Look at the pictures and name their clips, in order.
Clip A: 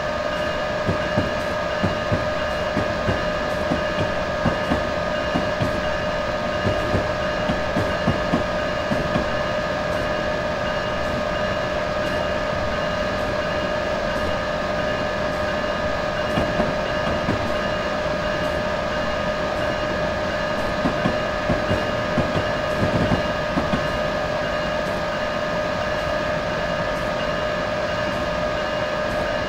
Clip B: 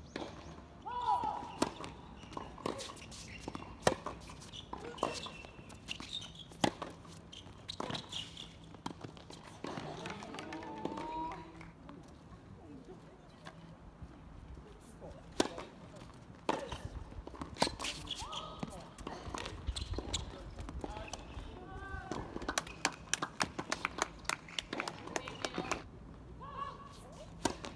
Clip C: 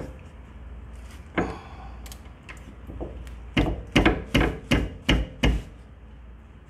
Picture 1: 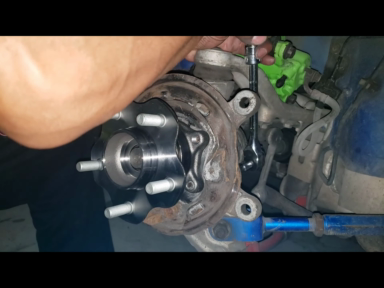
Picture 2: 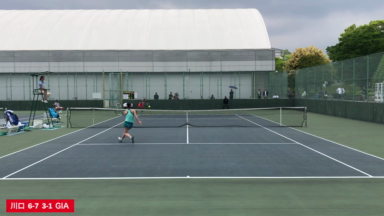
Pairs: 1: C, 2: B